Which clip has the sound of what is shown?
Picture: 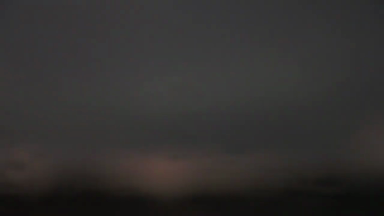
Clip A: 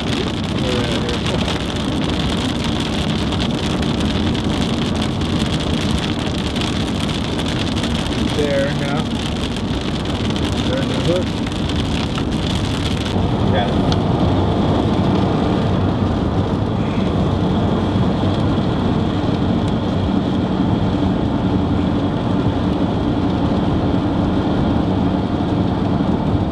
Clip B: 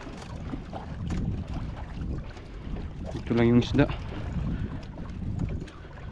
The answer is A